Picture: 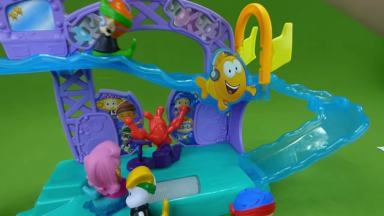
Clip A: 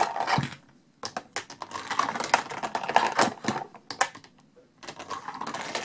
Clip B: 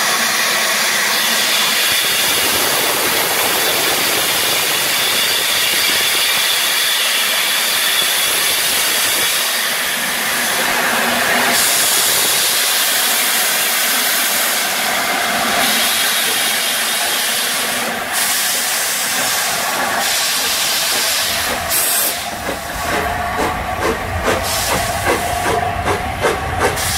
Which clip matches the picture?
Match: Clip A